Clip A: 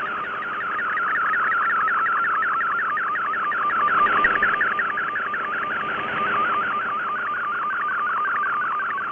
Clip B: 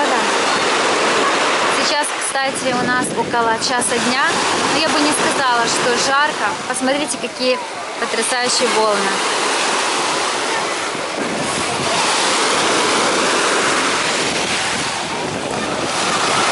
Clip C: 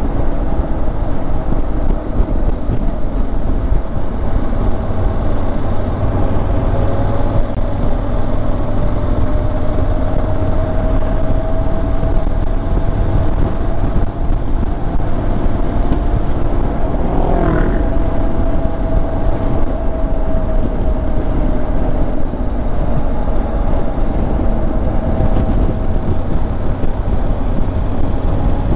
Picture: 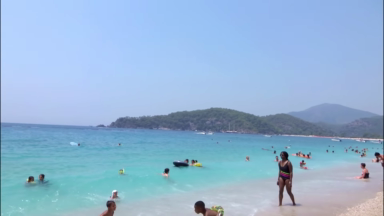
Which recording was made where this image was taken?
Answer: B